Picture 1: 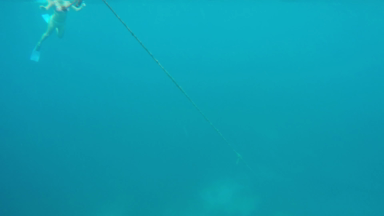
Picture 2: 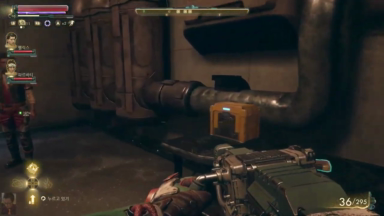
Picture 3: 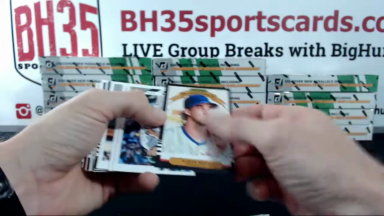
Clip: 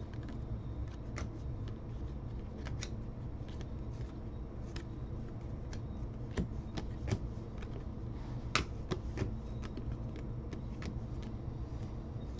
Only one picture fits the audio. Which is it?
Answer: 3